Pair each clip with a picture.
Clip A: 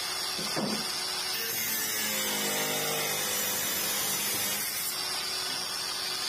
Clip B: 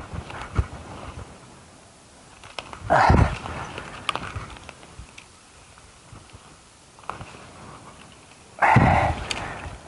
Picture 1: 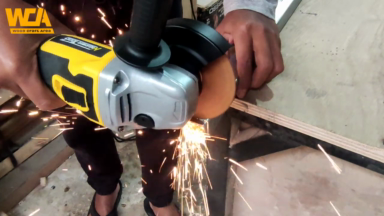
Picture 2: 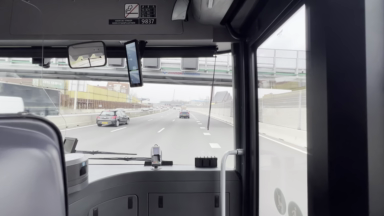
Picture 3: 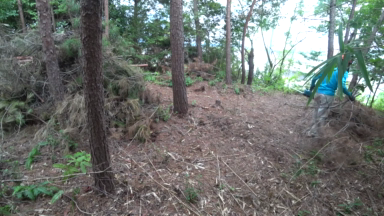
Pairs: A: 1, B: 3